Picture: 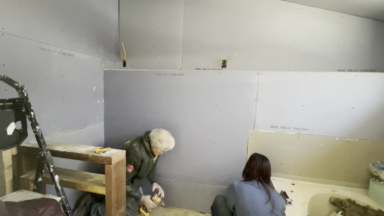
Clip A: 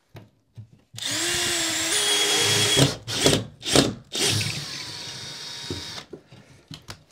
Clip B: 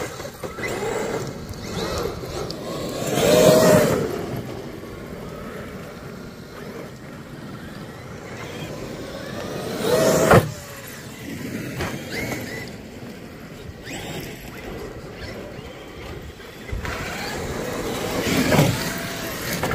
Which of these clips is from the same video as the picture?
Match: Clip A